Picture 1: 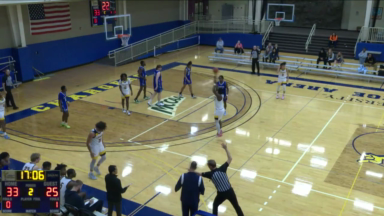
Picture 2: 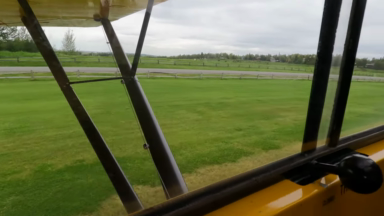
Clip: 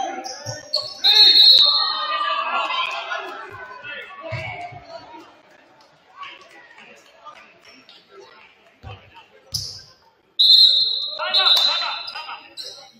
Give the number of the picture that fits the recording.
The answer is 1